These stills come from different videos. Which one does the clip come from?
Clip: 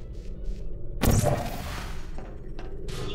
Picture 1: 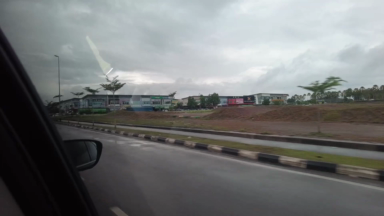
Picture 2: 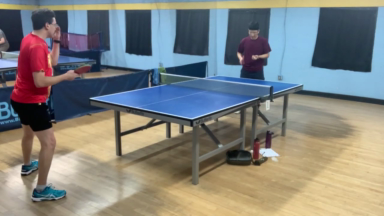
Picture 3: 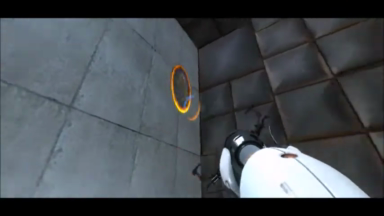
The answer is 3